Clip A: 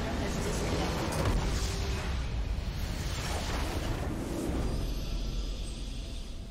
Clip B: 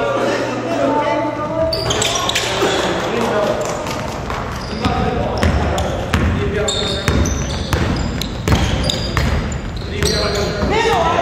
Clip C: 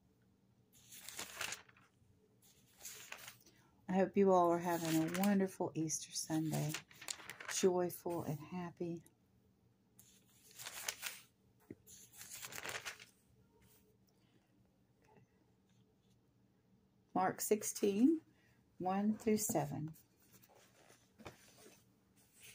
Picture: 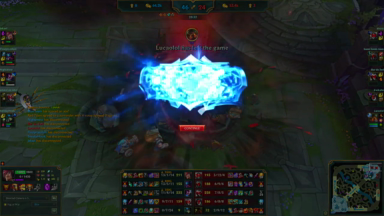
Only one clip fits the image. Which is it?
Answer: A